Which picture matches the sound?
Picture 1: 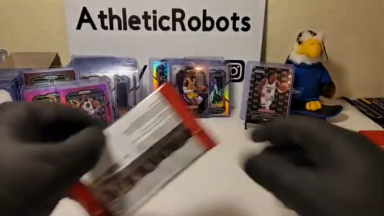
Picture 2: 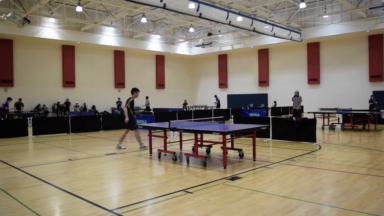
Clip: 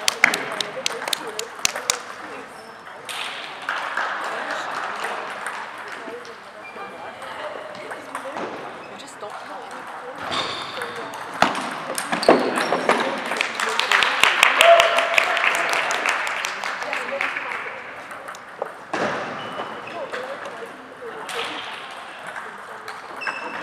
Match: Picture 2